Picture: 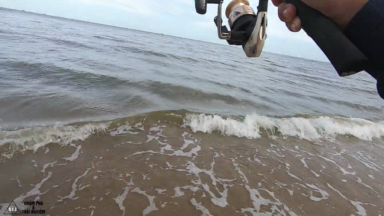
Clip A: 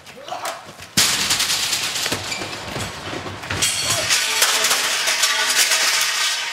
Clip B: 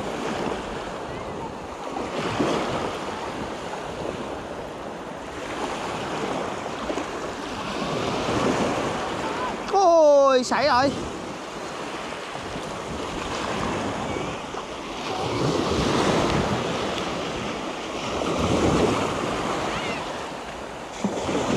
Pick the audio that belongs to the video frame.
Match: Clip B